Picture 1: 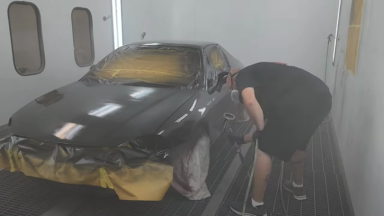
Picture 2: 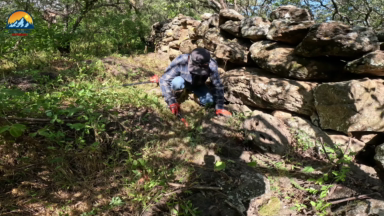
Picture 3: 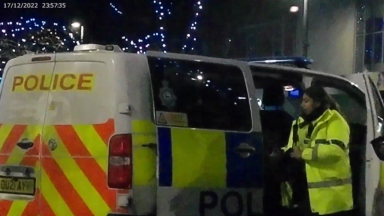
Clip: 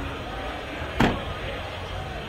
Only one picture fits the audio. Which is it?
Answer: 3